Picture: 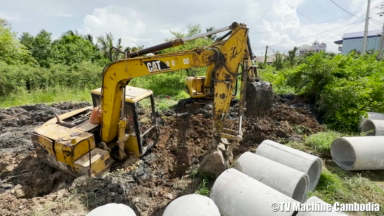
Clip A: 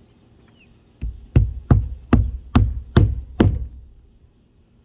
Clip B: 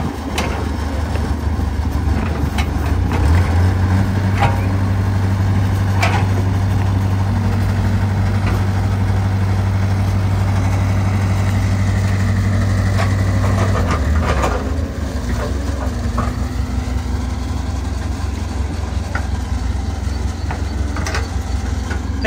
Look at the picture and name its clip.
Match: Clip B